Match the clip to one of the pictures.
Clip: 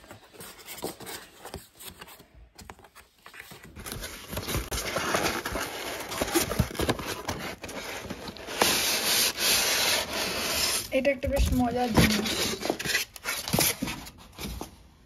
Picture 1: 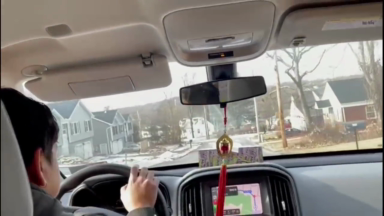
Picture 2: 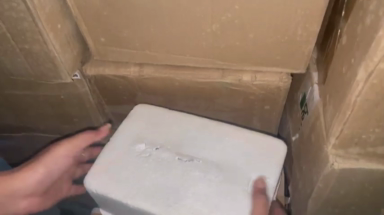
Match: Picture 2